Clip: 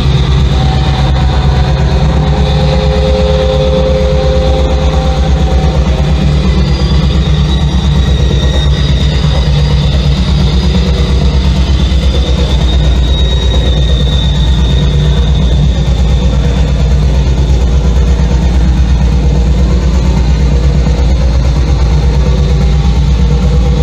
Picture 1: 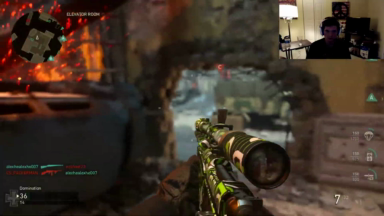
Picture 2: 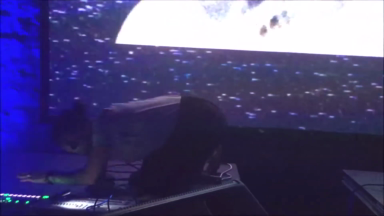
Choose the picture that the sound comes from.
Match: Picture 2